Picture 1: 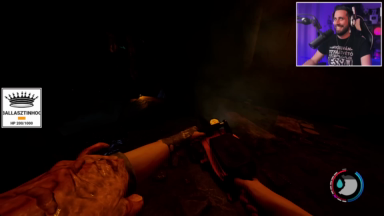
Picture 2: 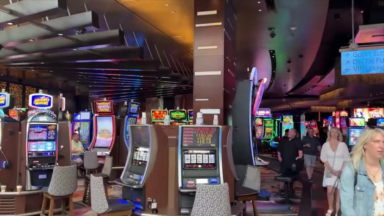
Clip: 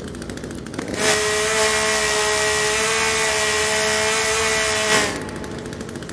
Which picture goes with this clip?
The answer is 1